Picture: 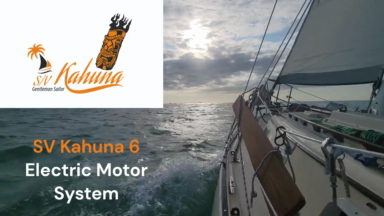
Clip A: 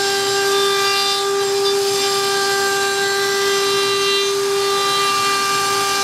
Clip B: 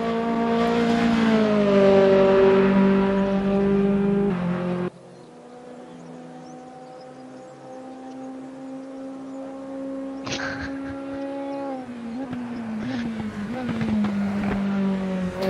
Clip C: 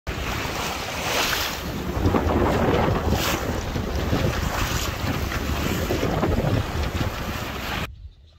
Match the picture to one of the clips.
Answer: C